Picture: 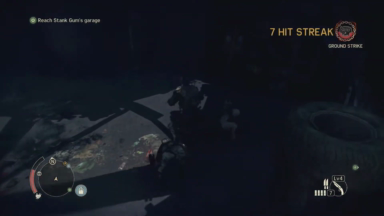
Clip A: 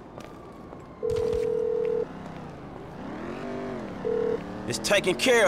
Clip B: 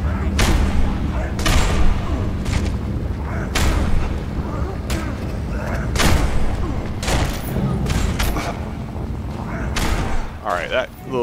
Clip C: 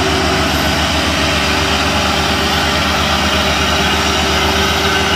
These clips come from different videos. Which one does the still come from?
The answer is B